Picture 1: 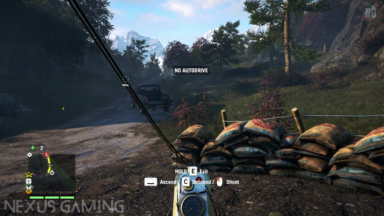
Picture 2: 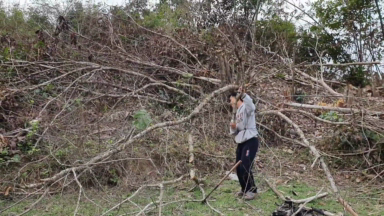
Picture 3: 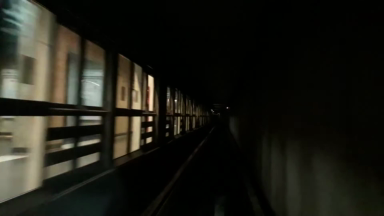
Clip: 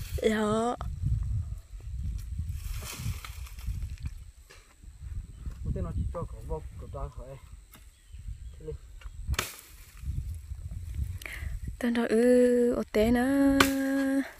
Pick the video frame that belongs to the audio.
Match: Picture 2